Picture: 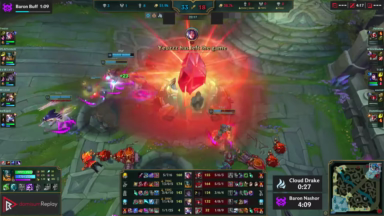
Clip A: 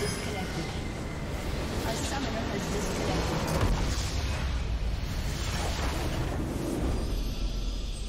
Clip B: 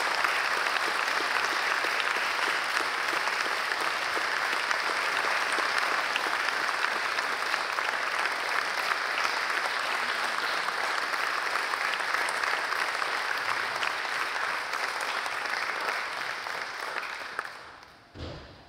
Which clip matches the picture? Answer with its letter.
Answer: A